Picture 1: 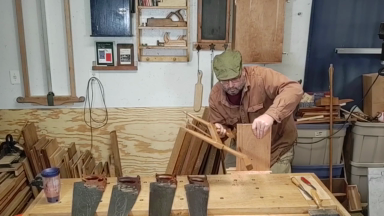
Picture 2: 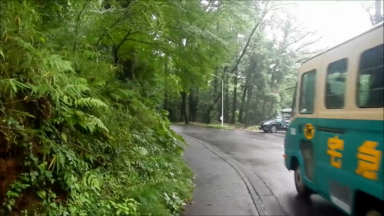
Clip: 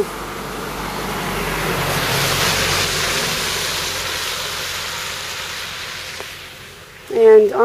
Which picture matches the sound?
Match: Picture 2